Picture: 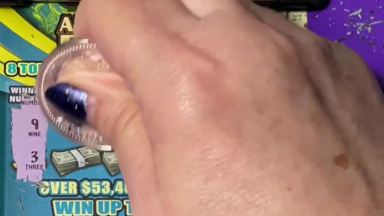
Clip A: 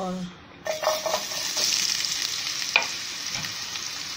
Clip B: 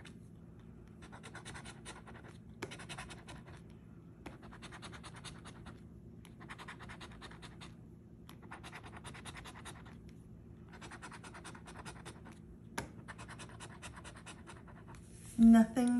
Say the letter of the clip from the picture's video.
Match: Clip B